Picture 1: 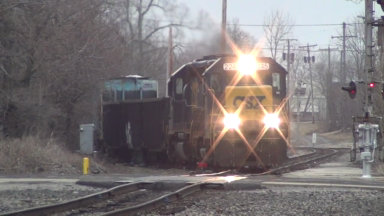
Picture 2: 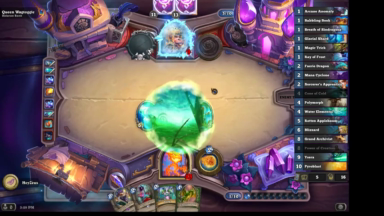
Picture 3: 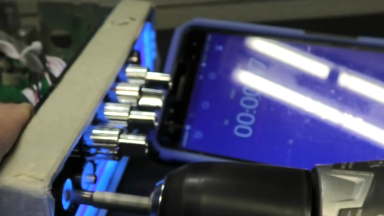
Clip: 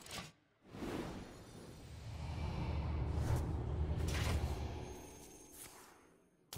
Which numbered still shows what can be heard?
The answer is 2